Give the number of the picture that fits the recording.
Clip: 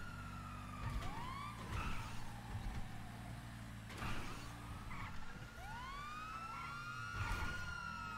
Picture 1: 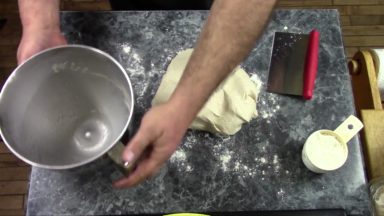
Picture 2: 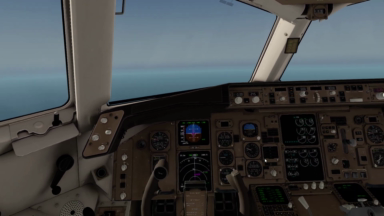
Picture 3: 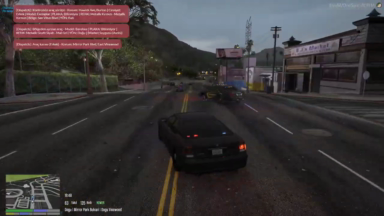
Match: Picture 3